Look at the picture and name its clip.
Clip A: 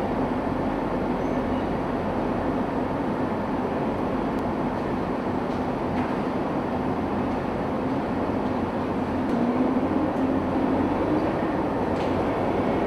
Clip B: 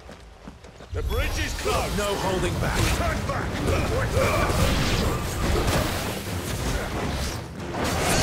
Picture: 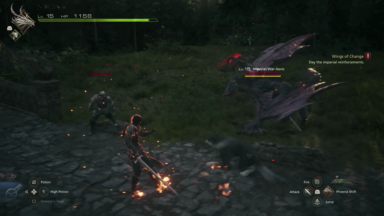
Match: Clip B